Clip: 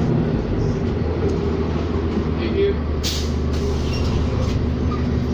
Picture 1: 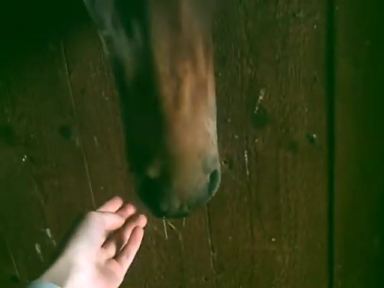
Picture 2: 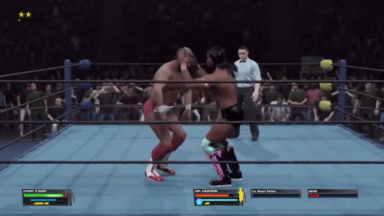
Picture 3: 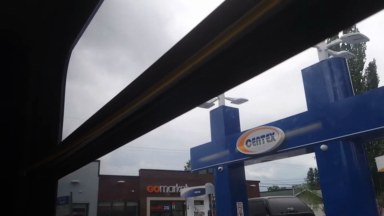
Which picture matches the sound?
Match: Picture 3